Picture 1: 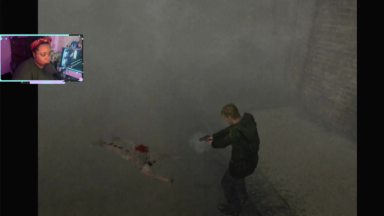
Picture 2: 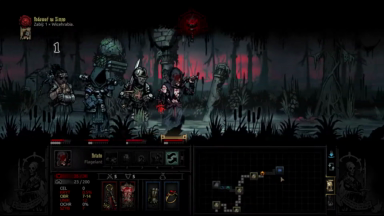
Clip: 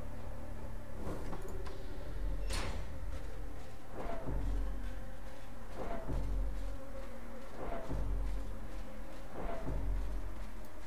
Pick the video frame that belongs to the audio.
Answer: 2